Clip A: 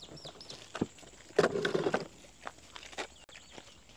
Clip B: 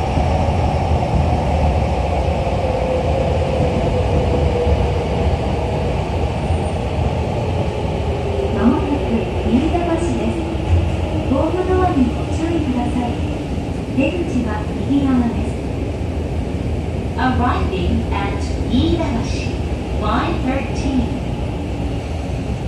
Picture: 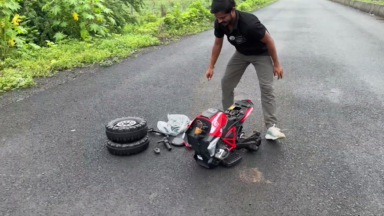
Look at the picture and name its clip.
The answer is A